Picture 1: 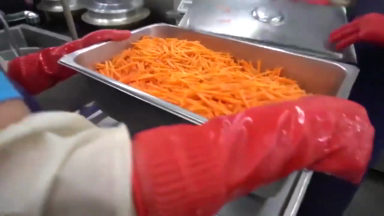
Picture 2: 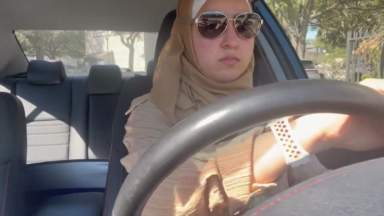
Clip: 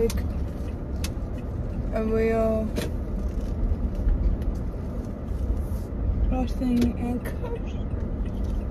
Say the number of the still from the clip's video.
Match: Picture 2